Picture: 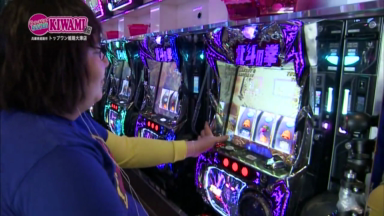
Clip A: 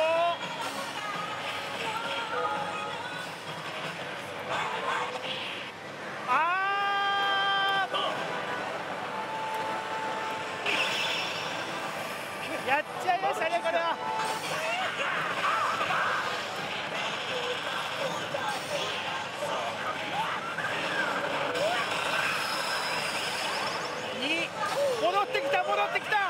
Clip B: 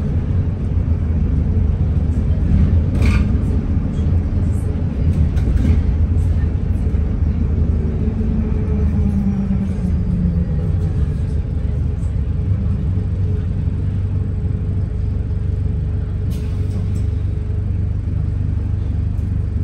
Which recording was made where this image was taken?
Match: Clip A